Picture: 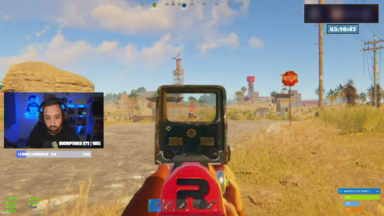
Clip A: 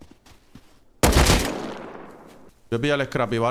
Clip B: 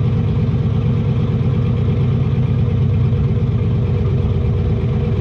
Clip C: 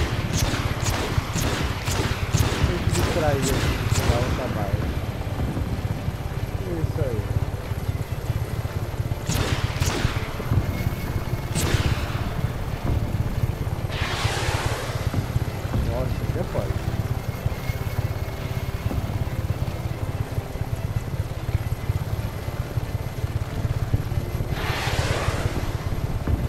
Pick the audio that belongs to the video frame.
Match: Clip A